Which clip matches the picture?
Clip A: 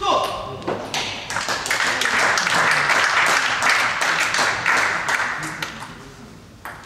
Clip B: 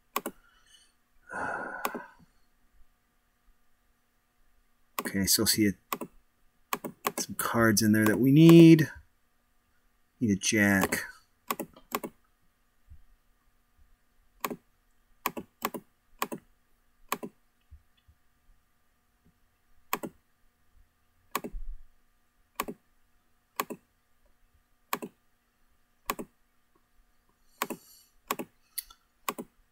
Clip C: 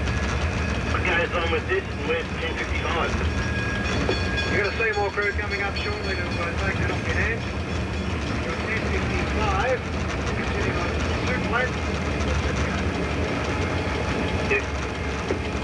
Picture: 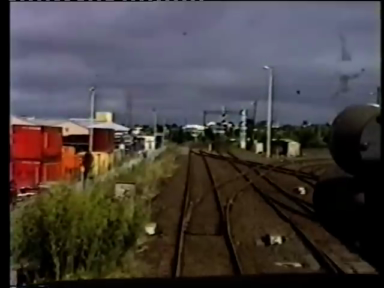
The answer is C